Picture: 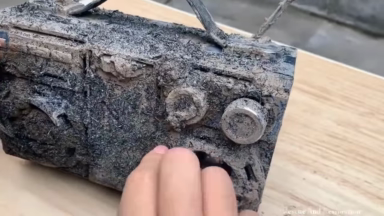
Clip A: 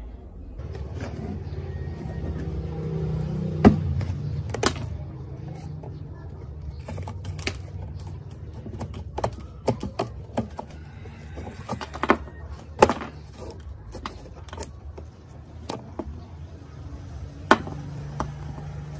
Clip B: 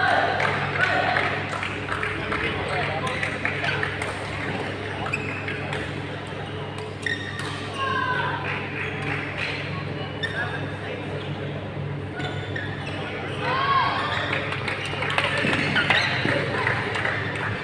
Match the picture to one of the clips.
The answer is A